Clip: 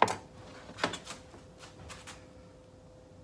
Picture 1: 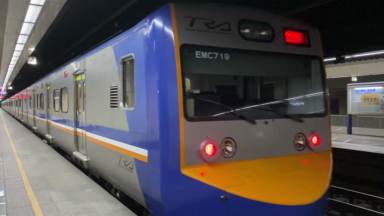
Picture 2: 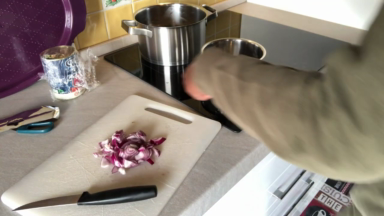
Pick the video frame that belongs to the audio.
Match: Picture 2